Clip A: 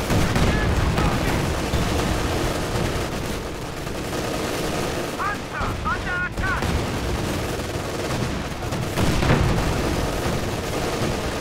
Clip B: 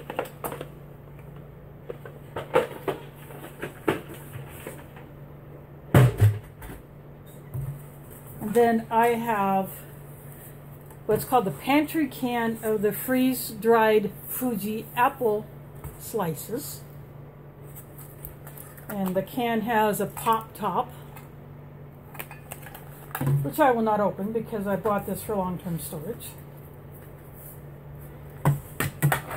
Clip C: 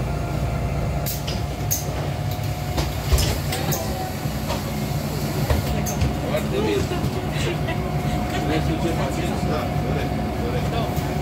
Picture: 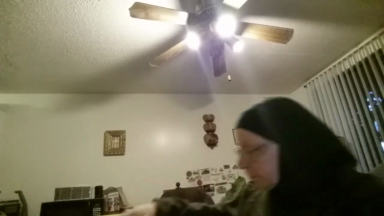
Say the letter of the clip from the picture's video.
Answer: B